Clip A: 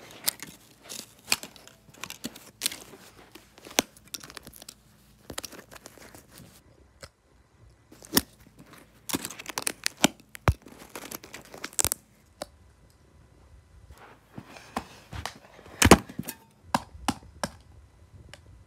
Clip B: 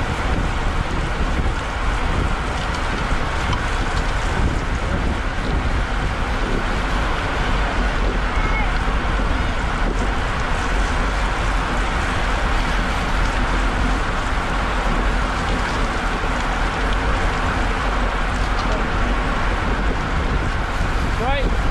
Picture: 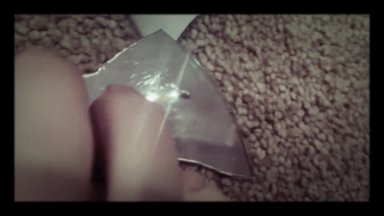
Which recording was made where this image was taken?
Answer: A